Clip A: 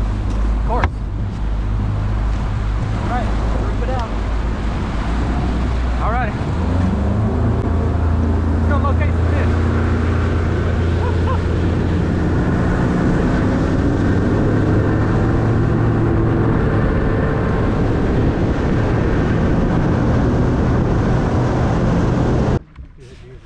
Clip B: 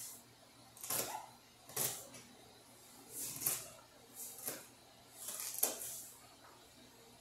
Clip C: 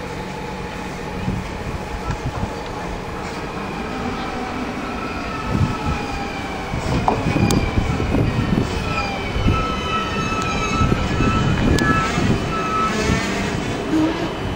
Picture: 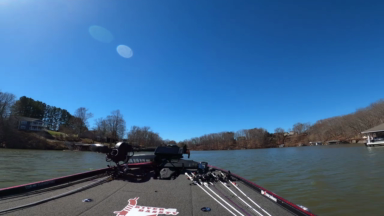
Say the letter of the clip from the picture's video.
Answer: A